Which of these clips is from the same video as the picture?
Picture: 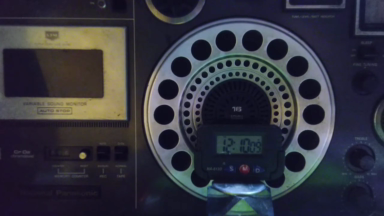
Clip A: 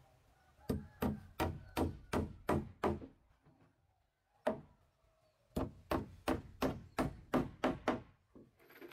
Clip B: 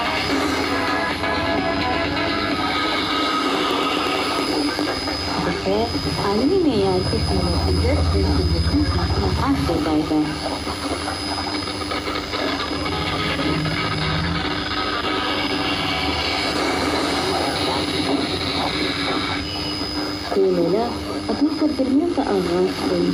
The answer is B